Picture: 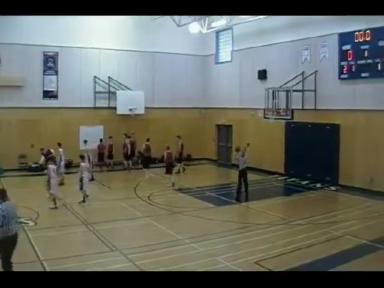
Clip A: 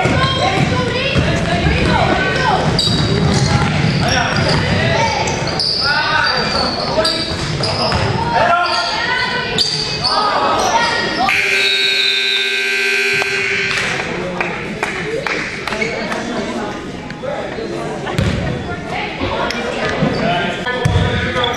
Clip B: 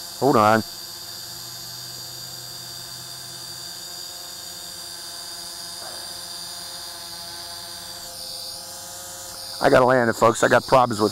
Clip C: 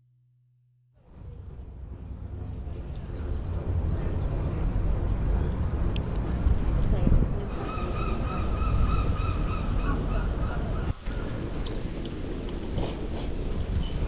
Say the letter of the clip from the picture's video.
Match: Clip A